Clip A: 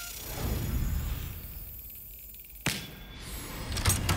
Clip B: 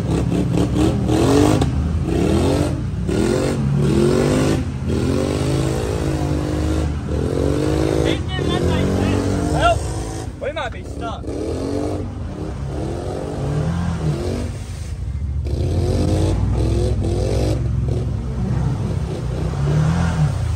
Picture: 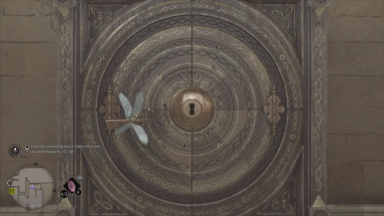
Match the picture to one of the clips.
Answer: A